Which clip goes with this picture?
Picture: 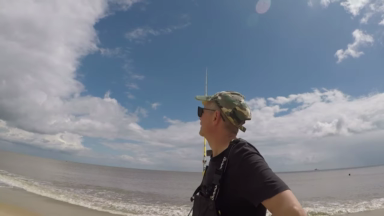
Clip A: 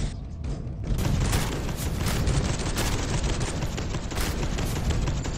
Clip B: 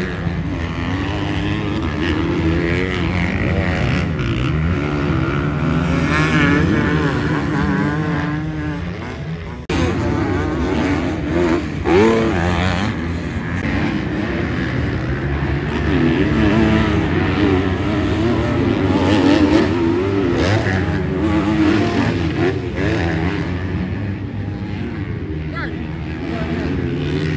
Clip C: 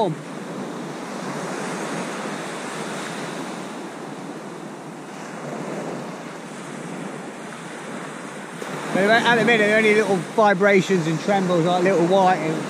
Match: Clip C